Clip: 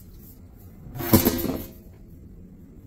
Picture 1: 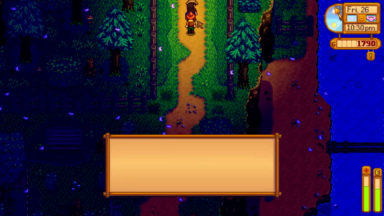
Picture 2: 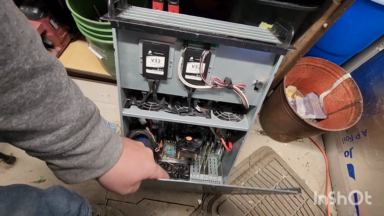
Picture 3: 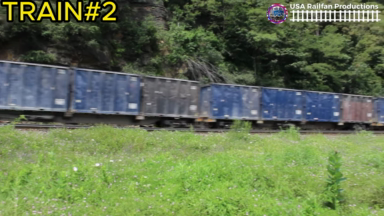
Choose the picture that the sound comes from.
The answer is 2